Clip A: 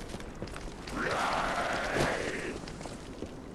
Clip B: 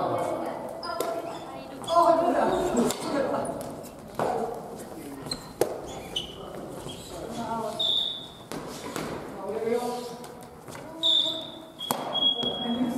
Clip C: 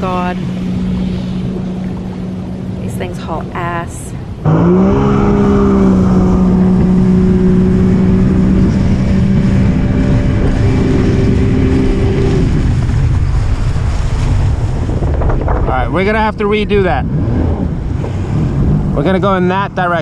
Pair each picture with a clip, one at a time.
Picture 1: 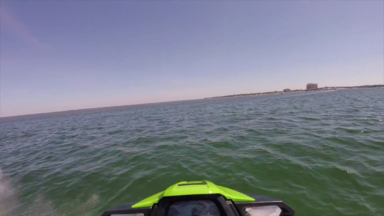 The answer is C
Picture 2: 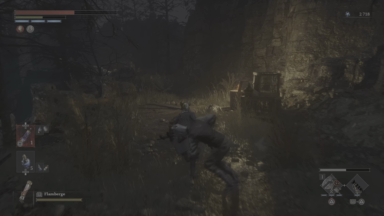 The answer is A